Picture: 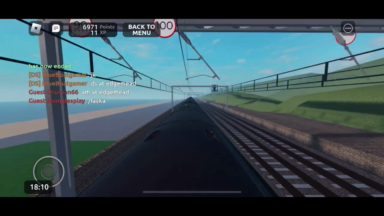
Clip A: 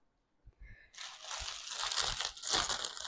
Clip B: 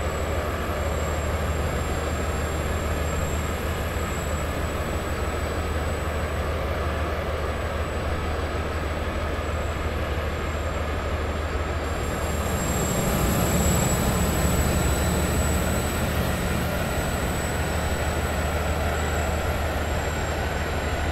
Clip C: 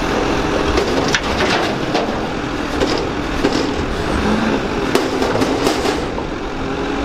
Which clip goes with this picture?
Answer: B